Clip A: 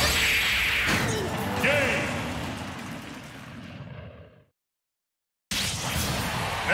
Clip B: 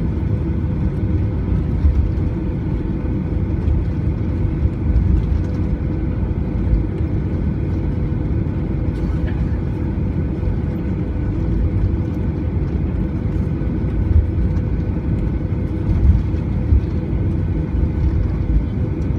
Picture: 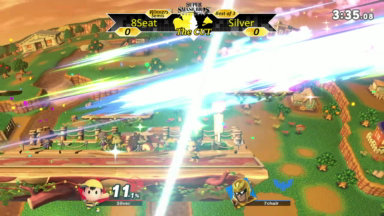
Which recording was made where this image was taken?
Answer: A